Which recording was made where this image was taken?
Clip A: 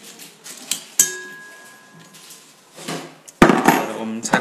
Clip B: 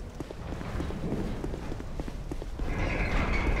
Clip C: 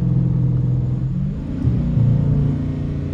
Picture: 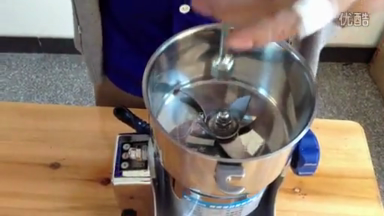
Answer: A